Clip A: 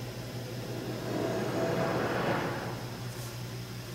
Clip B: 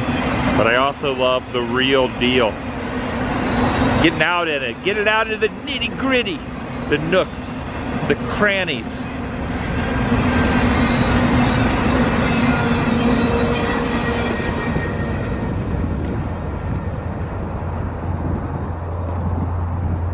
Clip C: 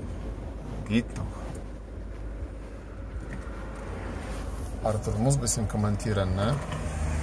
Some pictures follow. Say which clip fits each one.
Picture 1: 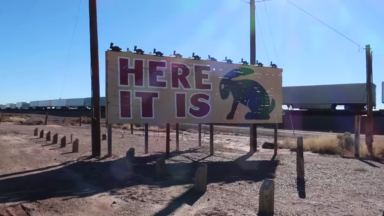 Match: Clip B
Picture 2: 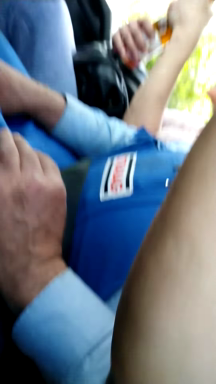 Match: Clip C